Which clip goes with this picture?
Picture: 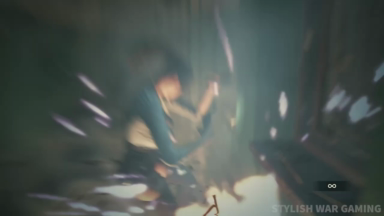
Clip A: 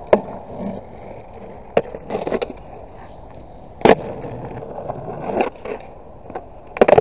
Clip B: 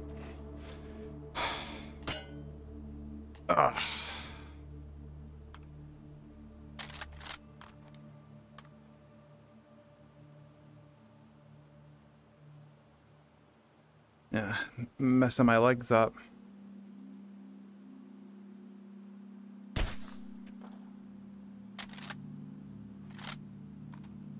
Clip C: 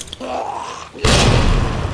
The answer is C